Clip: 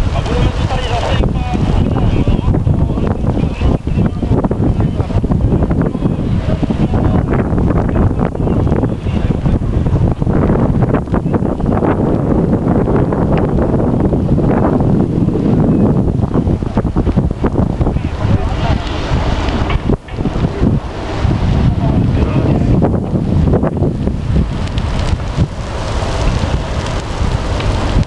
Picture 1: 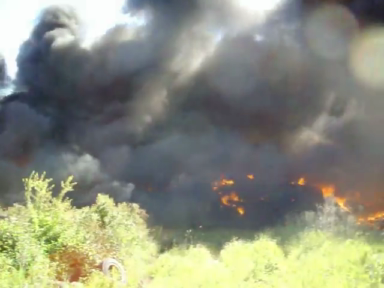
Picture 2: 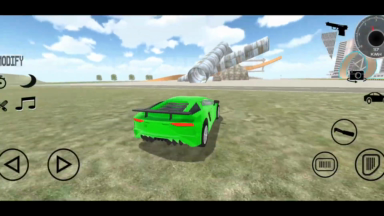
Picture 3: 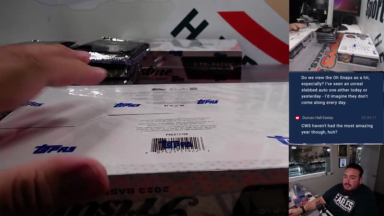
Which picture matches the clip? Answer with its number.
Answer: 1